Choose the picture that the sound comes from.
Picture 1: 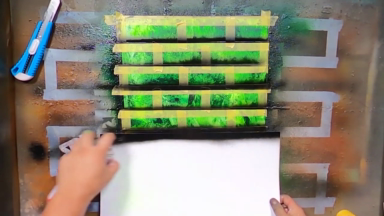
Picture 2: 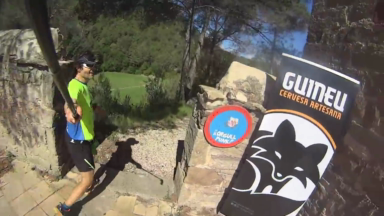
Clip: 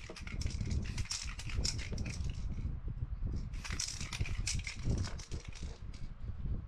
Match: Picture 1